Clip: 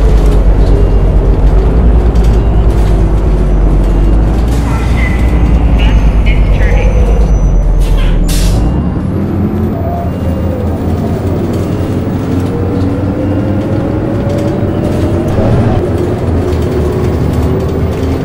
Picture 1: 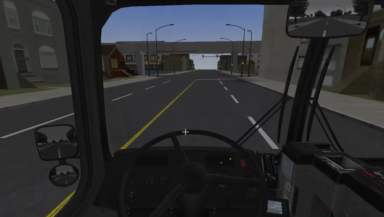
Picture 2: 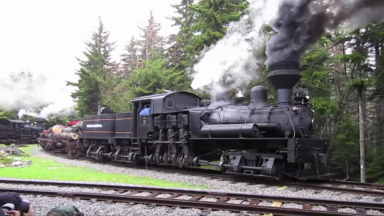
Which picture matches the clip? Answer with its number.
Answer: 1